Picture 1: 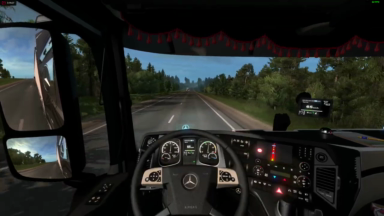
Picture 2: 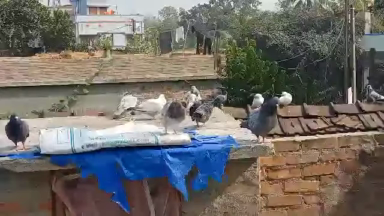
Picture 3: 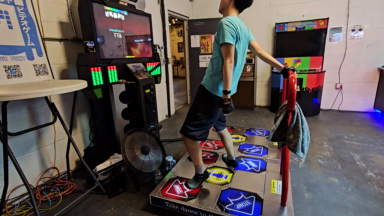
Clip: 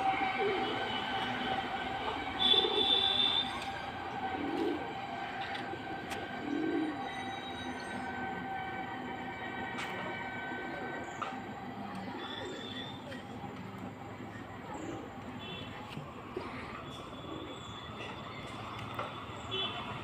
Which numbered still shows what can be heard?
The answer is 2